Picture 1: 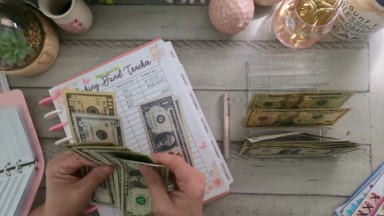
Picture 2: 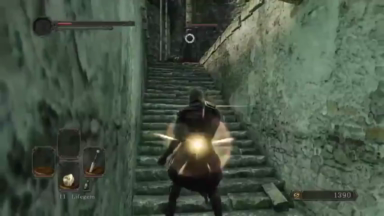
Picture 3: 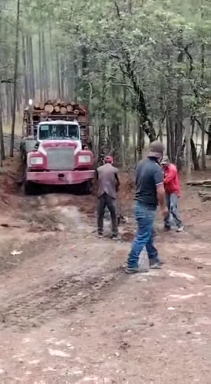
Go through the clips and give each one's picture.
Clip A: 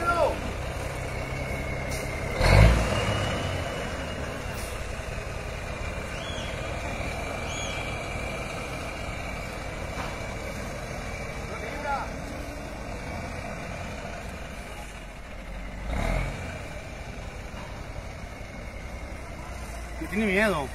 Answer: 3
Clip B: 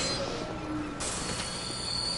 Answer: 2